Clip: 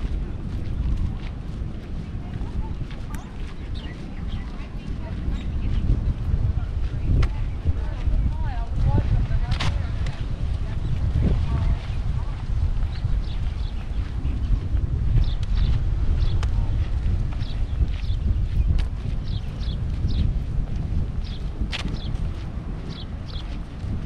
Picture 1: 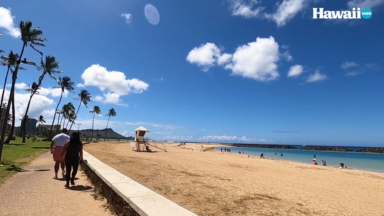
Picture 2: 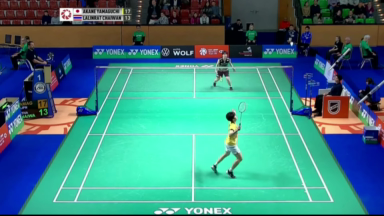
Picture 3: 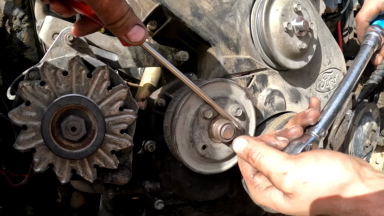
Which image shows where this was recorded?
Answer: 1